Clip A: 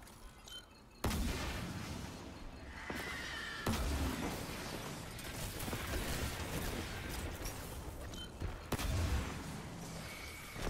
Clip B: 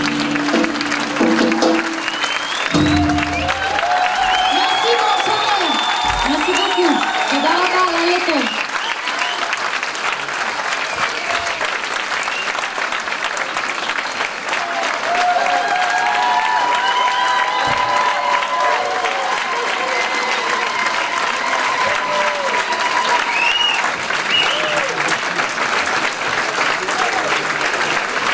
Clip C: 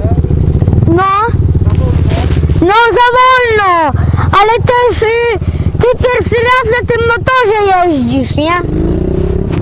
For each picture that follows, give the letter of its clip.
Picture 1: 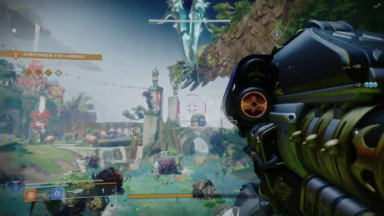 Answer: A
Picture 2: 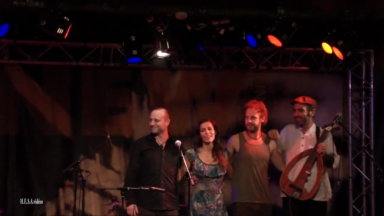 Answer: B